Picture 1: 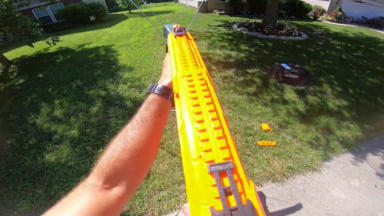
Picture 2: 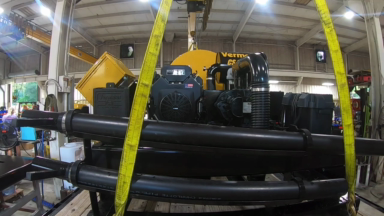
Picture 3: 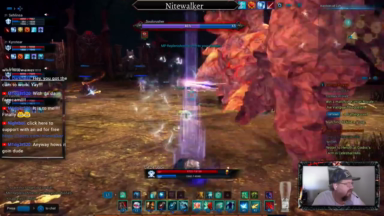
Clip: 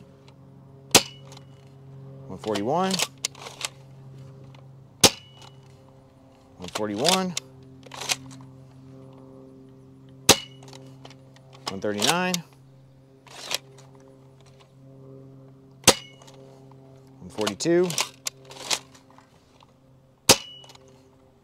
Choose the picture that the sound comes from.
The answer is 1